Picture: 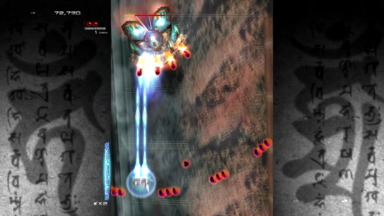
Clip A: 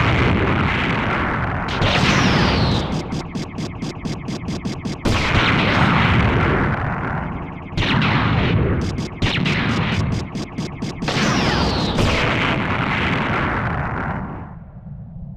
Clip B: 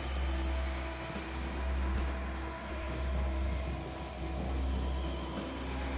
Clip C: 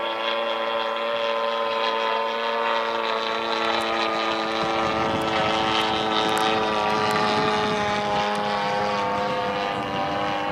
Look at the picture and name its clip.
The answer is A